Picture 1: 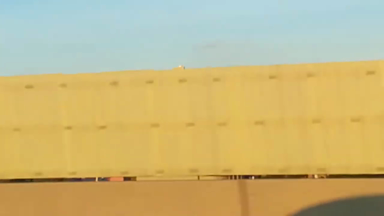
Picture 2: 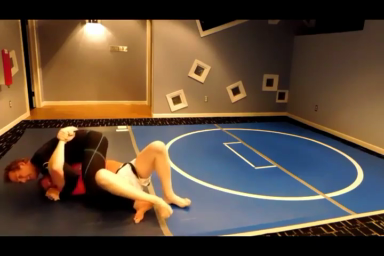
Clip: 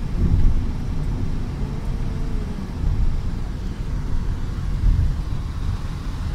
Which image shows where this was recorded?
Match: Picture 1